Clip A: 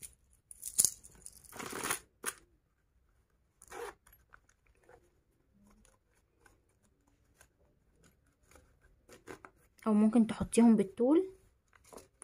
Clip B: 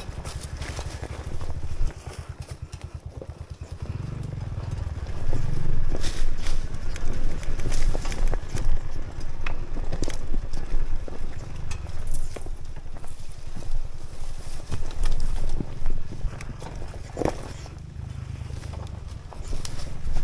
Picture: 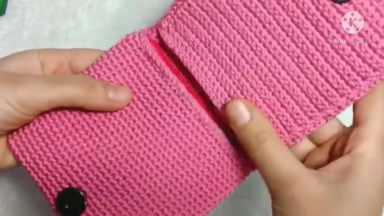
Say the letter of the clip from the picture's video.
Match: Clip A